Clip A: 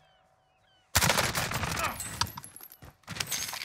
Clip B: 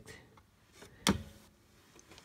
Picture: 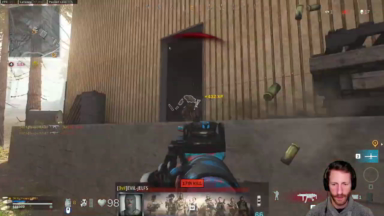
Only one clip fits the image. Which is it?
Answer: A